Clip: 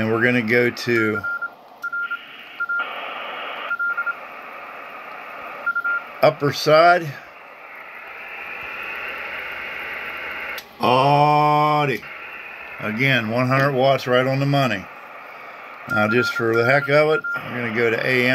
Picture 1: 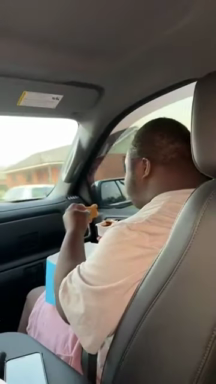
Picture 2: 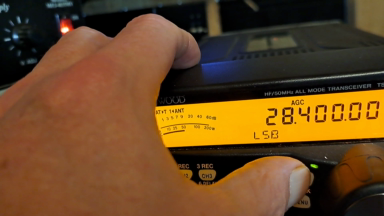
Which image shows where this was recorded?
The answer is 2